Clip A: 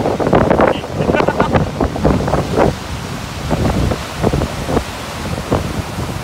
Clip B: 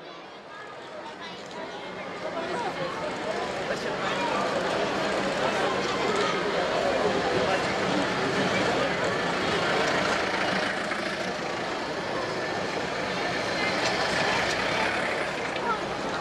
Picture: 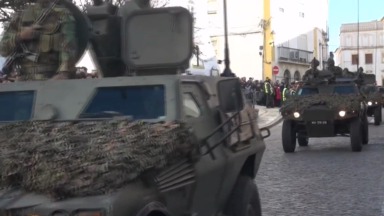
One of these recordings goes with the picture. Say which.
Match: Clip B